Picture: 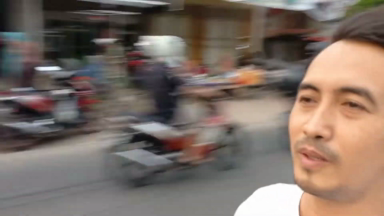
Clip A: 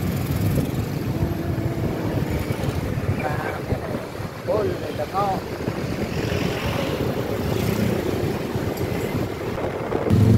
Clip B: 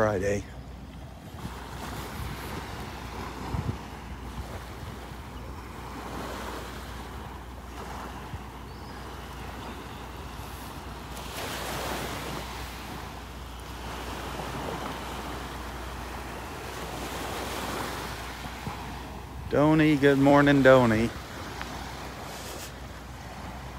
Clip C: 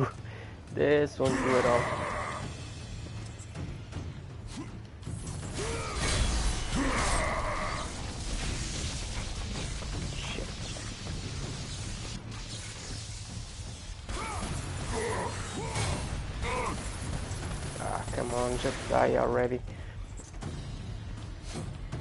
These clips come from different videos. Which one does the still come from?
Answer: A